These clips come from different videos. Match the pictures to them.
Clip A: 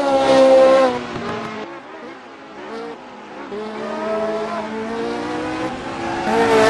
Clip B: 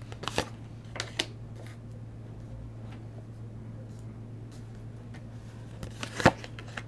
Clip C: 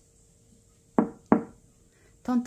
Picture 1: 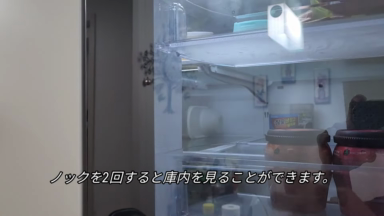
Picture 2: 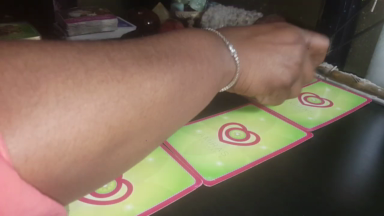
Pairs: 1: C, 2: B